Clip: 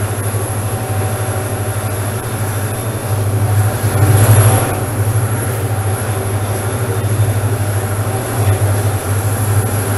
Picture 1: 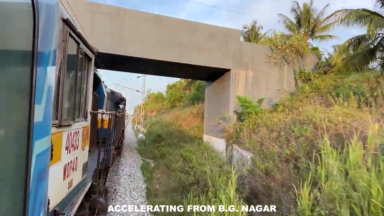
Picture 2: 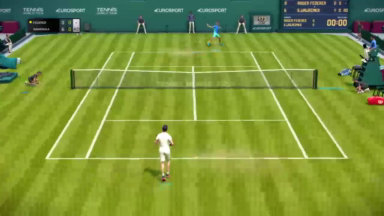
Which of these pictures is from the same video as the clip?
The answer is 1